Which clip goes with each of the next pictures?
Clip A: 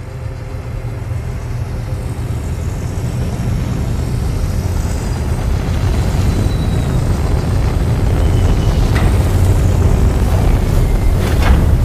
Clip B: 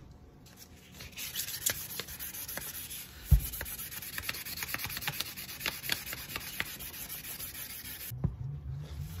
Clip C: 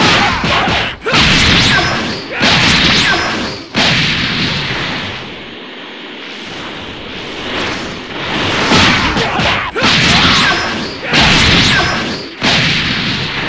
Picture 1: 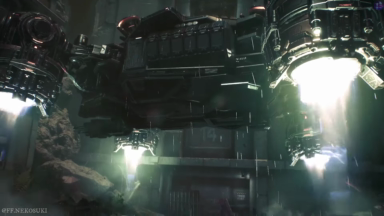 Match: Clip A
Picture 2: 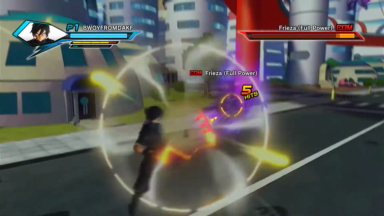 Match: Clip C